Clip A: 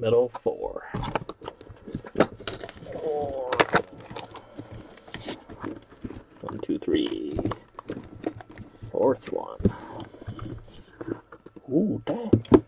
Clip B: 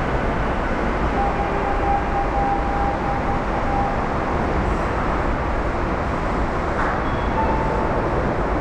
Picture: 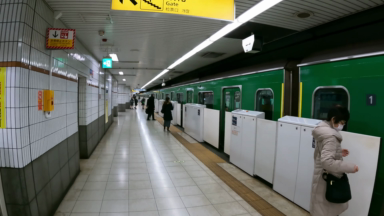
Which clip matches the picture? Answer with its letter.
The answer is B